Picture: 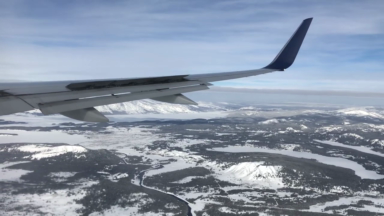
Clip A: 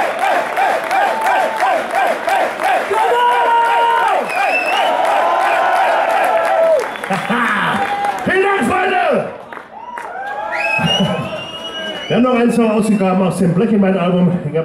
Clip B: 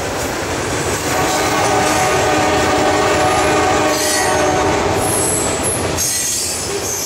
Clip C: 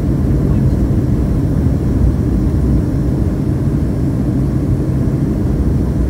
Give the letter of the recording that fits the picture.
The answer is C